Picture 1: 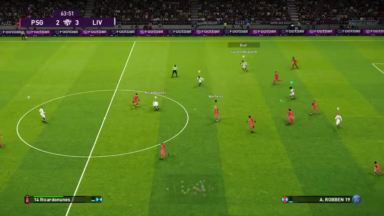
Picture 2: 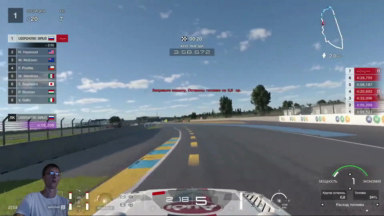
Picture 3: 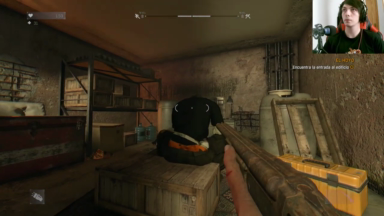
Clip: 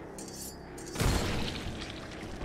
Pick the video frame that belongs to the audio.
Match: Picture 3